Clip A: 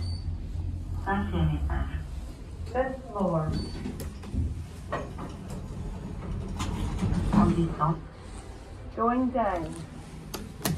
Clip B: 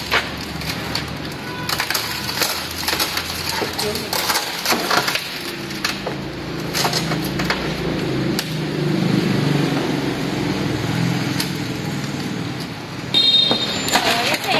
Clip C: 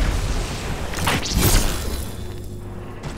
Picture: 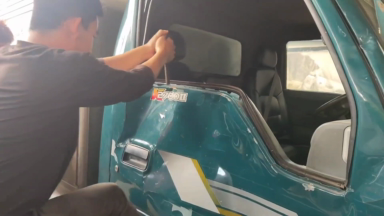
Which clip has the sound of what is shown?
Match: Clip B